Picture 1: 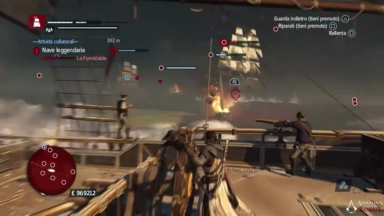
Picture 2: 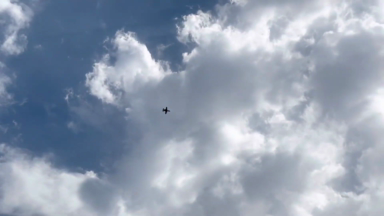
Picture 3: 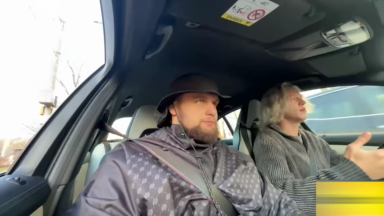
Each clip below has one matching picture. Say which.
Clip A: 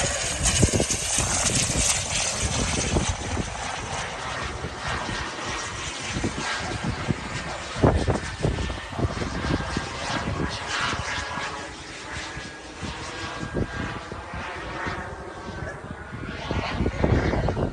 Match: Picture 2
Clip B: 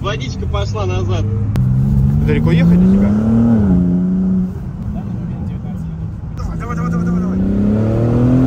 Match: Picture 3